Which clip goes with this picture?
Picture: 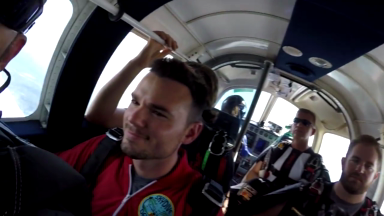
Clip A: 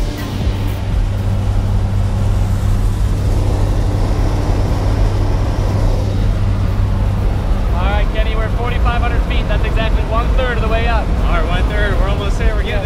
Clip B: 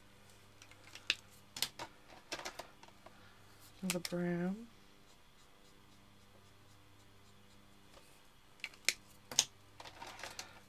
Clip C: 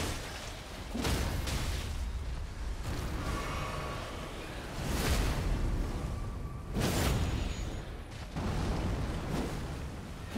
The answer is A